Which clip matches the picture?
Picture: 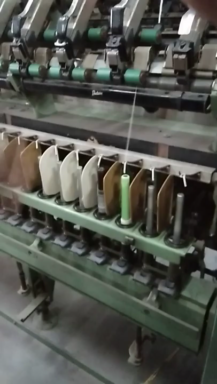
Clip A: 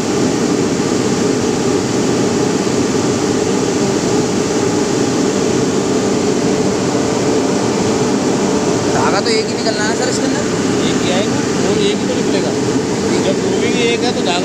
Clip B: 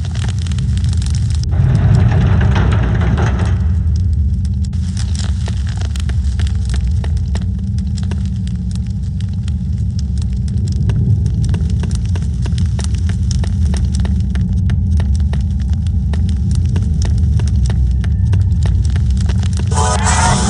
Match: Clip A